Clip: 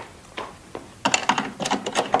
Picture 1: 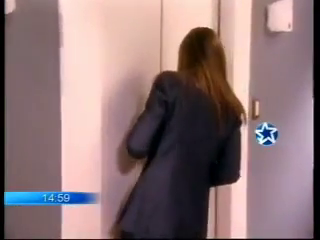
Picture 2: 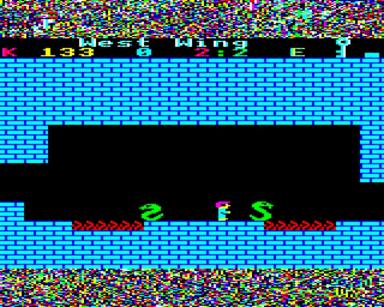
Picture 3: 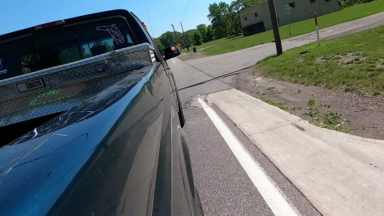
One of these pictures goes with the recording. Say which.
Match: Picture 1